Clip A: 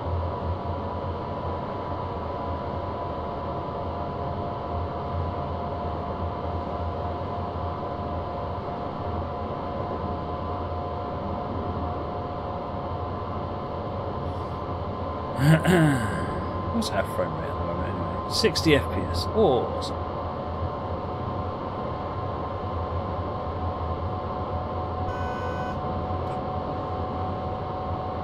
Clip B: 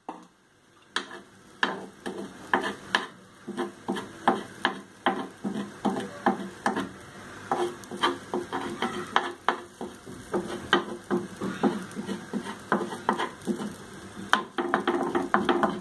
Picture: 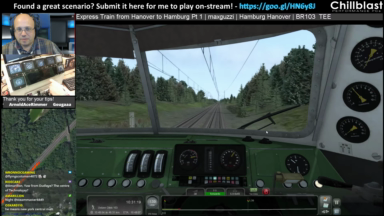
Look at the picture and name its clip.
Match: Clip A